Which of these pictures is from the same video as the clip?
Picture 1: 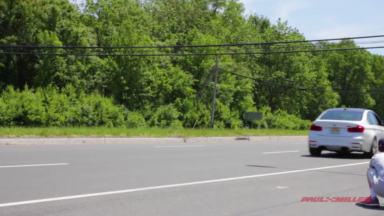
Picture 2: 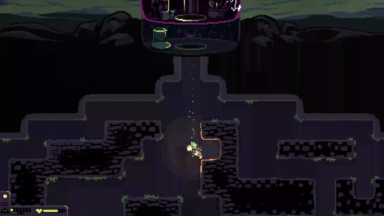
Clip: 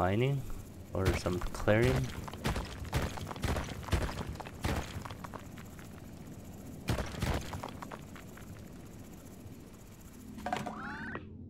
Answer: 2